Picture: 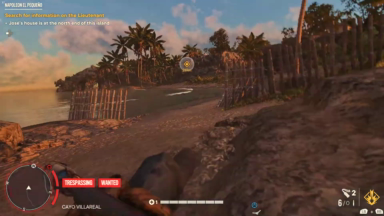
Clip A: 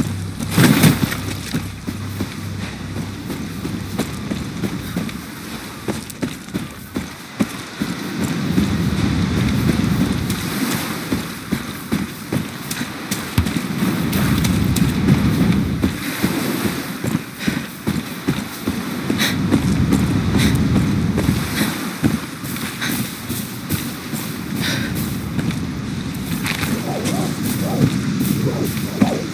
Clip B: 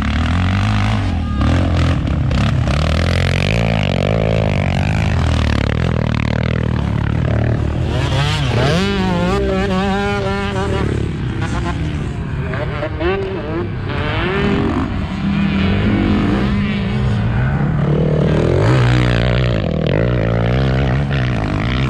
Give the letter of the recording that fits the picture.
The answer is A